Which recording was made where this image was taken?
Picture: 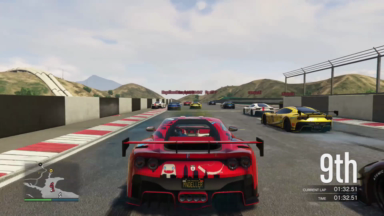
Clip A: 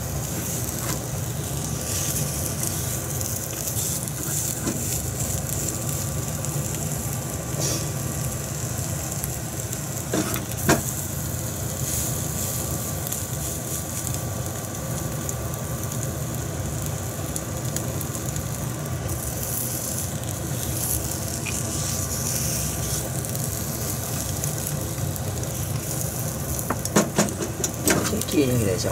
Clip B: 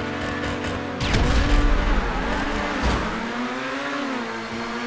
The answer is B